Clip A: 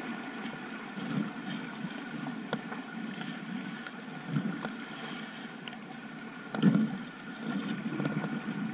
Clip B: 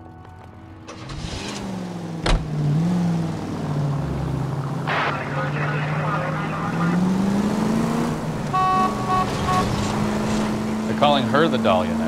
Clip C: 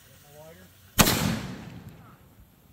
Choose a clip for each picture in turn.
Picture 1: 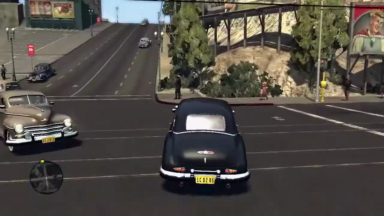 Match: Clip B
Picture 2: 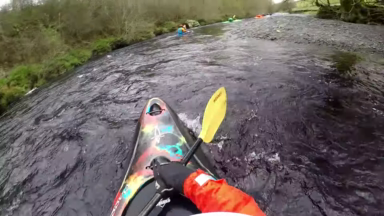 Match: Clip A